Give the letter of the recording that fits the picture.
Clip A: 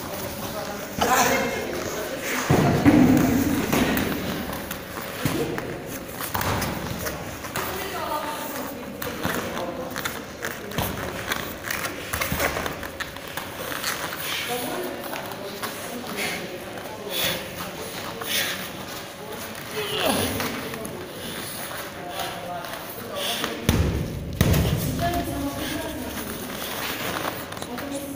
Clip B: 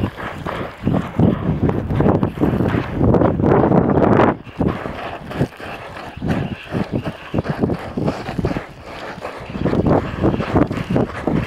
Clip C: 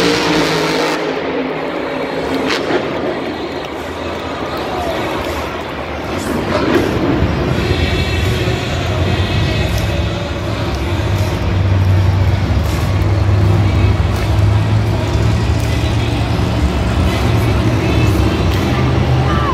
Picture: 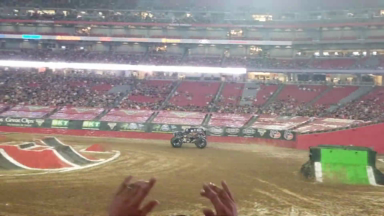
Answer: C